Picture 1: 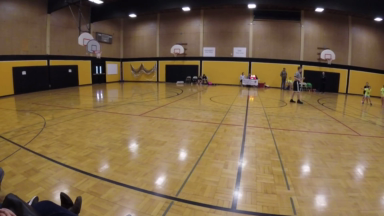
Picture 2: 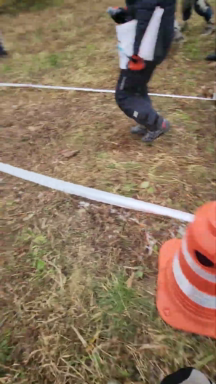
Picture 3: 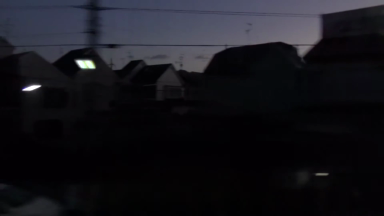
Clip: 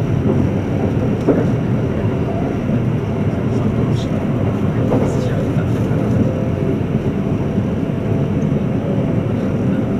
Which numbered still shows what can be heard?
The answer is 3